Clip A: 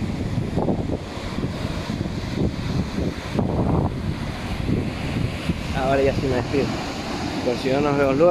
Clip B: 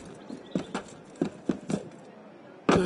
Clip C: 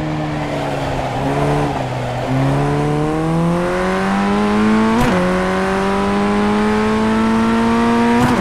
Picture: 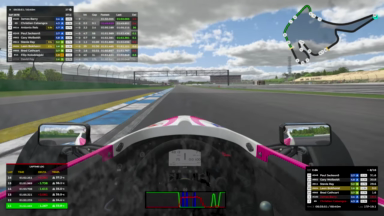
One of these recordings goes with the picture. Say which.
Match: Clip C